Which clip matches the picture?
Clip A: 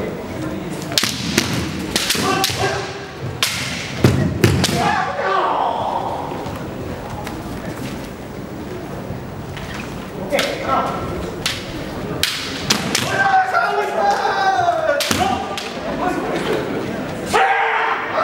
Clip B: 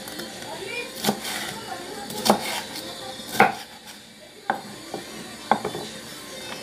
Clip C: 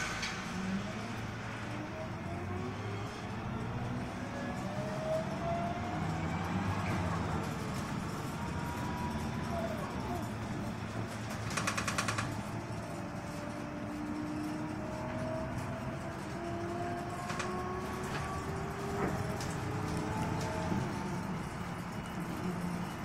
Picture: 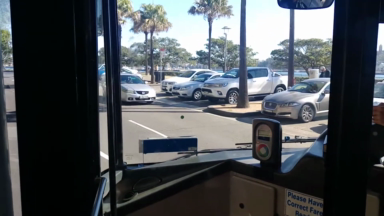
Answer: C